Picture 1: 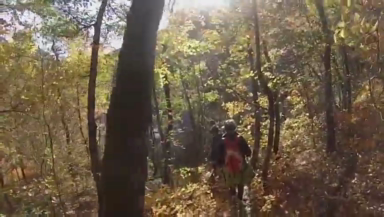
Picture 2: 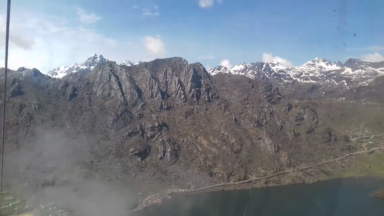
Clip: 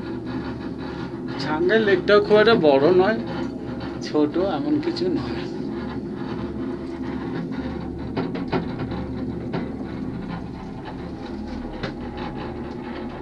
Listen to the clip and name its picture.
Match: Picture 2